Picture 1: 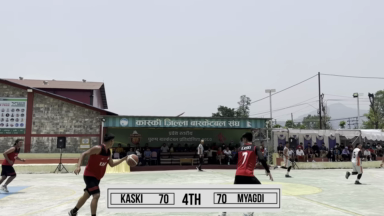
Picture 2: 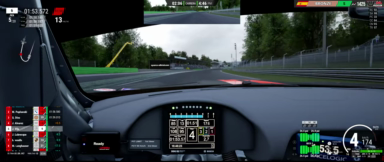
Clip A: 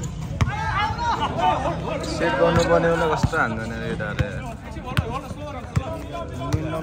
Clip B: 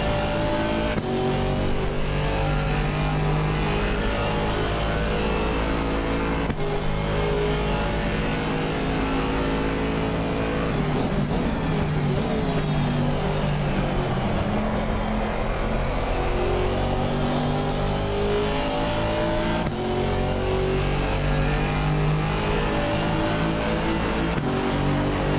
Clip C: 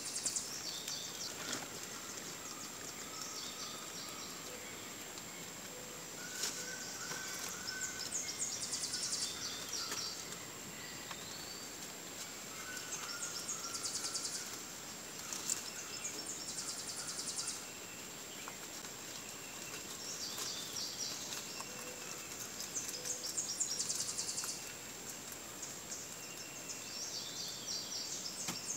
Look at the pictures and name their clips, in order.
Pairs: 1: A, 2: B